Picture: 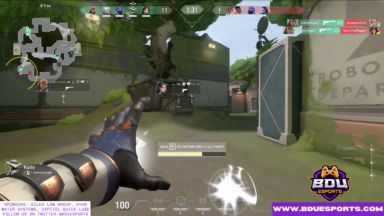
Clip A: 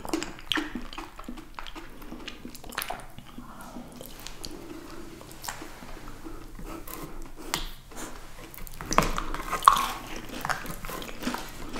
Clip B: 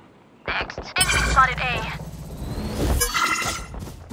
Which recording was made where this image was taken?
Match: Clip B